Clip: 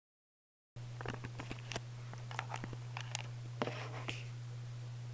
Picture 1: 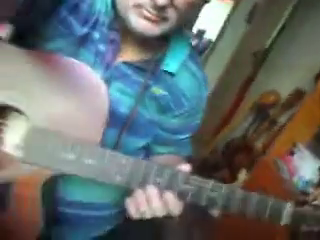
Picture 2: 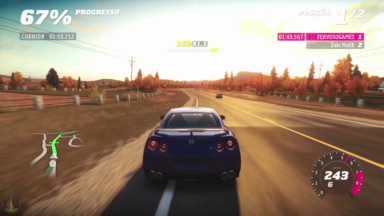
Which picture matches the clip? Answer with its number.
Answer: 1